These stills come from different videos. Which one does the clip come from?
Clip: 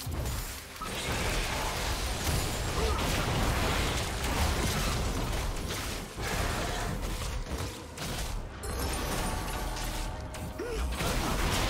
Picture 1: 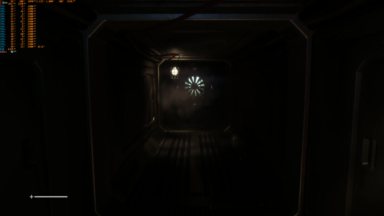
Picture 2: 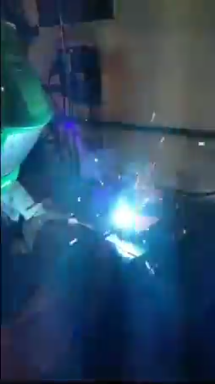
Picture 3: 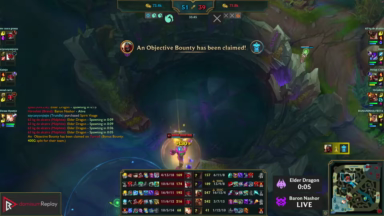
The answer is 3